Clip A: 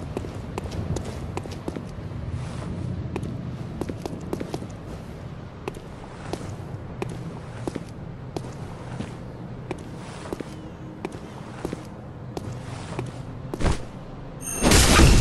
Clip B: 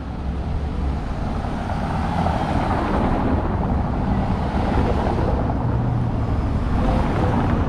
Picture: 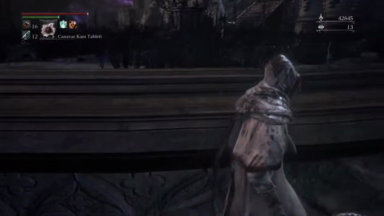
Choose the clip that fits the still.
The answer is A